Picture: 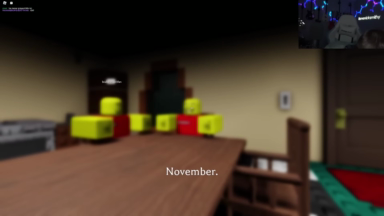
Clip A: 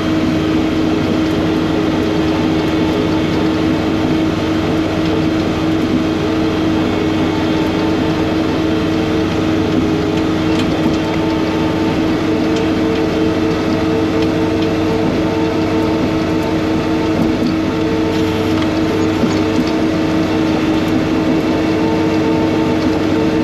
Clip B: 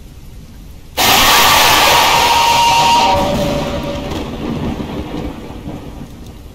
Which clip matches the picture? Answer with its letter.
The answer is B